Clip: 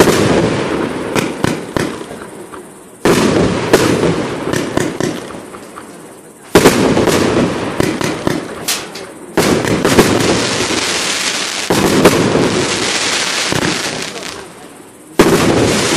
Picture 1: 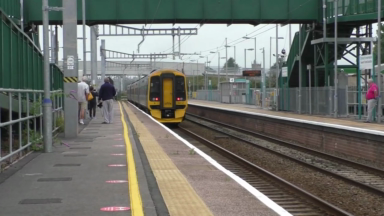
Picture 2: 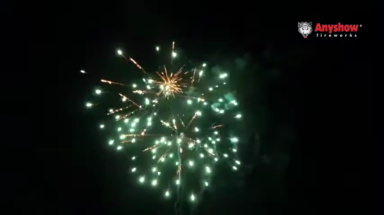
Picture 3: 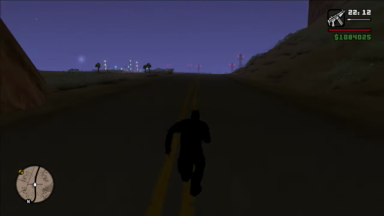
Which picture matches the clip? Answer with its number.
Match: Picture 2